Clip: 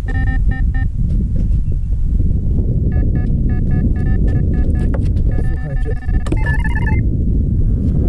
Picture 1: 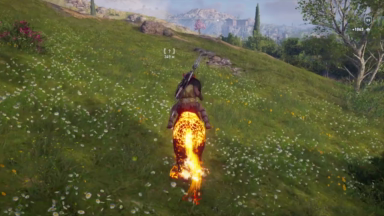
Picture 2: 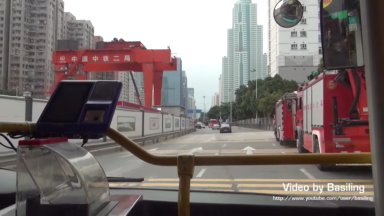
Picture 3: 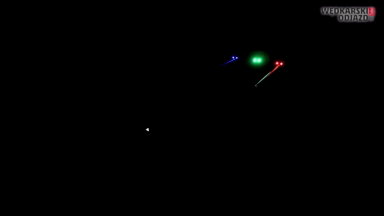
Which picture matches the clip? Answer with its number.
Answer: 3